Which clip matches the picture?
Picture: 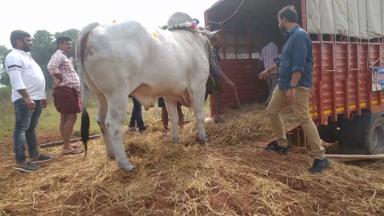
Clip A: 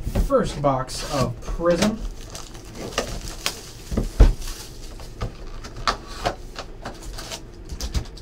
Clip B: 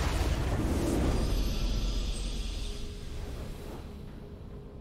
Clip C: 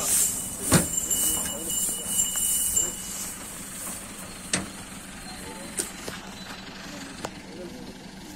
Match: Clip C